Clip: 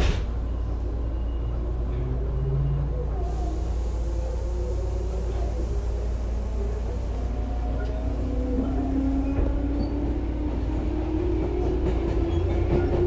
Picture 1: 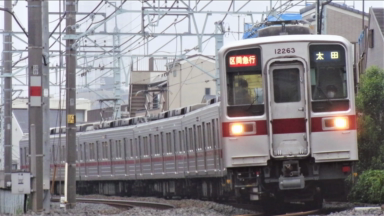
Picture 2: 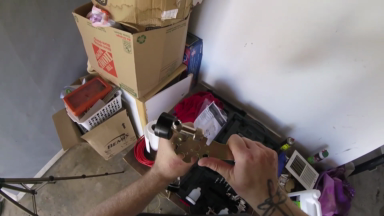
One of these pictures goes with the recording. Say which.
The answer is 1